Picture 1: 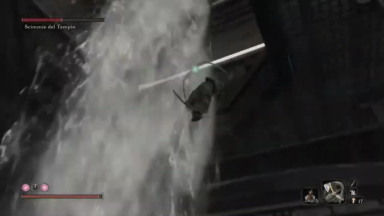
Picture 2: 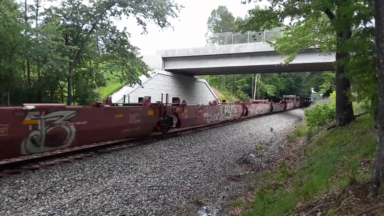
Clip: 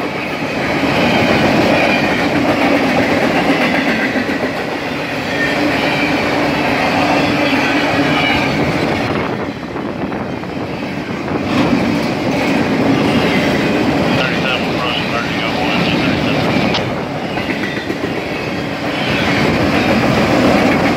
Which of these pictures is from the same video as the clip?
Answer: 2